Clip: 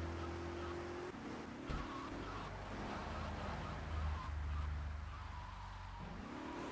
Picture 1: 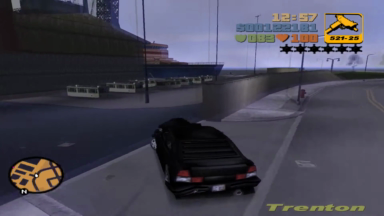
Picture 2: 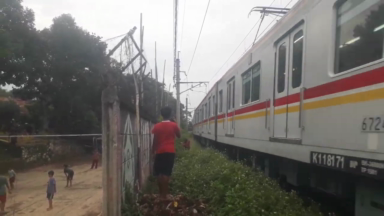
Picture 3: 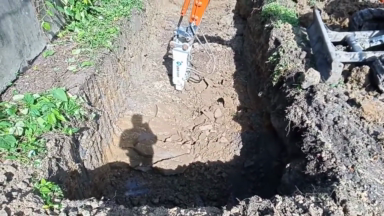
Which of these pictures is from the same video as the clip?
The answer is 1